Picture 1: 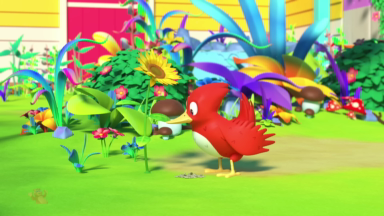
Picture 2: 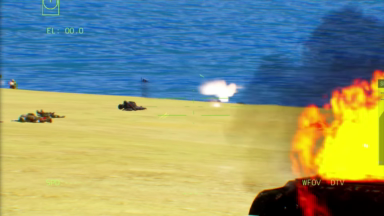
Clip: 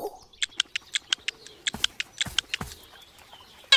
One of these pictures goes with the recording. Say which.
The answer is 1